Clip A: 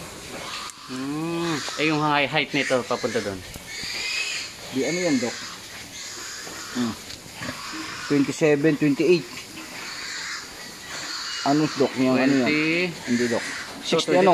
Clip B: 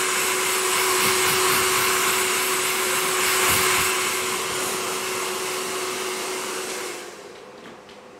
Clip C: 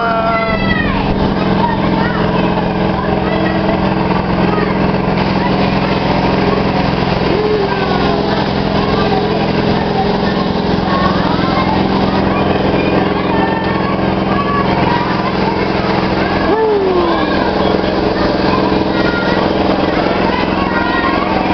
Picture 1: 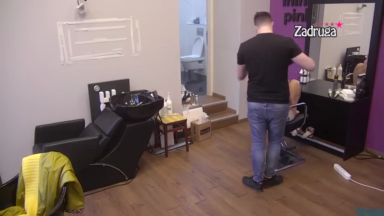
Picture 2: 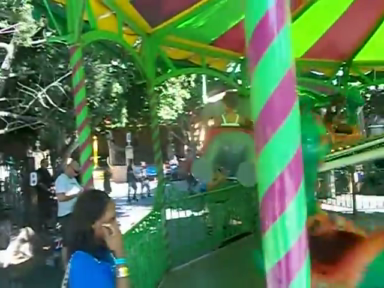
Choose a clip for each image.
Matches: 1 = B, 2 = C